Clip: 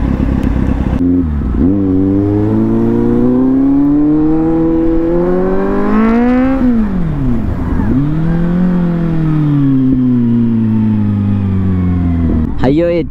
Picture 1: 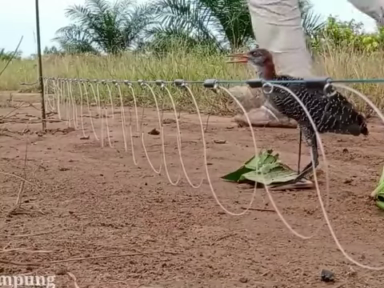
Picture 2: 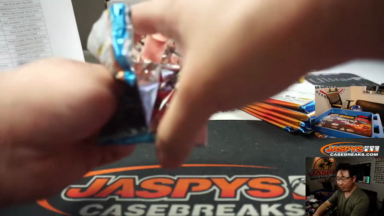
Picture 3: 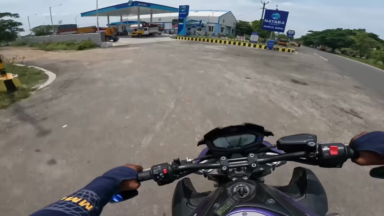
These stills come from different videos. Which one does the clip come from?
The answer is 3